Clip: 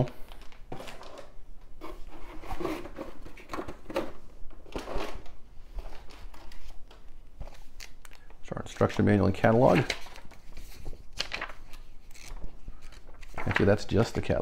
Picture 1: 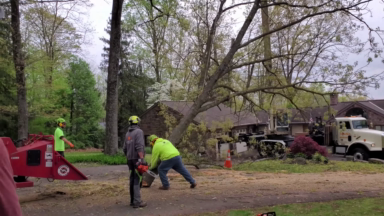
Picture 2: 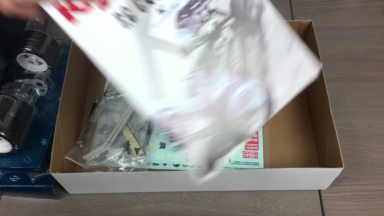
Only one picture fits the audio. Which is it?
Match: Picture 2